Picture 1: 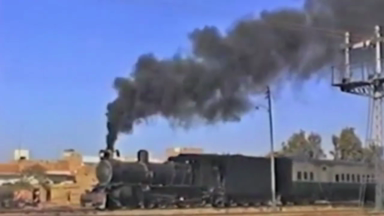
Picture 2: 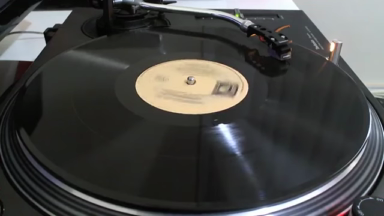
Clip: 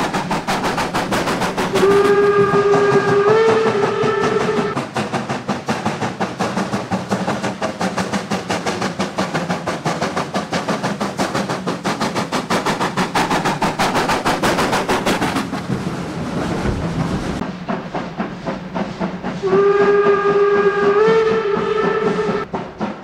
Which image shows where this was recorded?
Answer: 1